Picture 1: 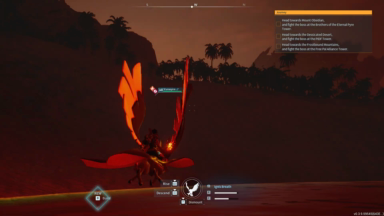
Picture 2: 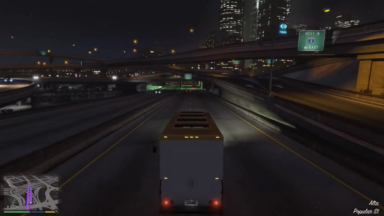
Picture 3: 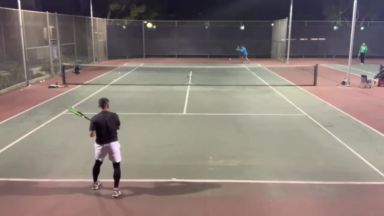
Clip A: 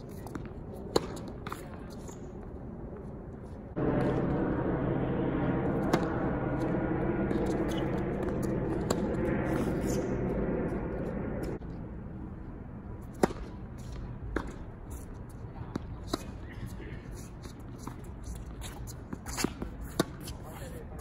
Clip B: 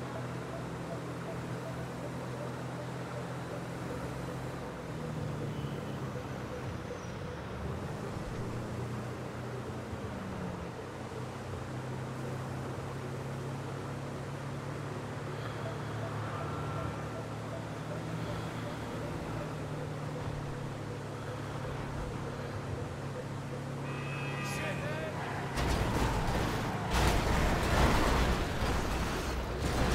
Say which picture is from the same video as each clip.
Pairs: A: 3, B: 2